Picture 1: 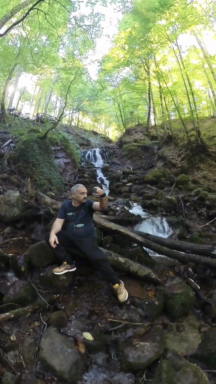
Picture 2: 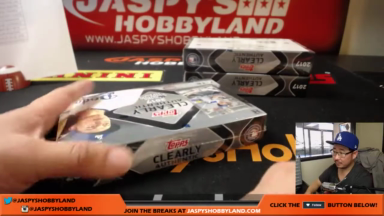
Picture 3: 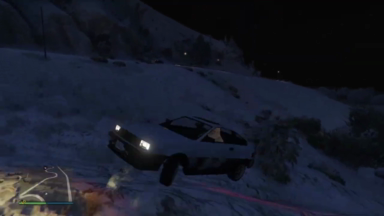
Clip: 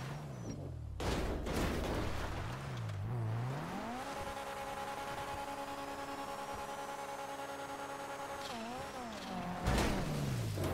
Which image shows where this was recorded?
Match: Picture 3